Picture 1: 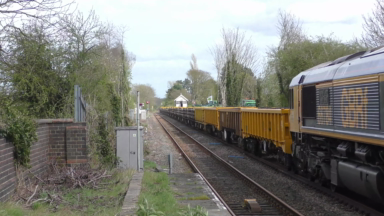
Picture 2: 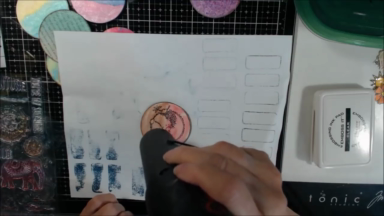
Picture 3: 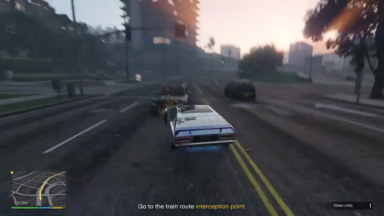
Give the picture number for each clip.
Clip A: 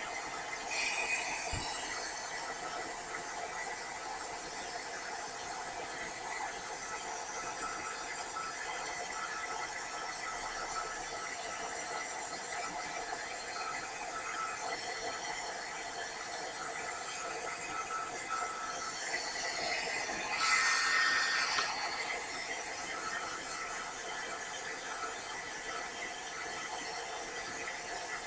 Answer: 2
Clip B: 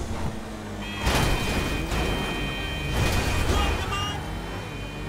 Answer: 3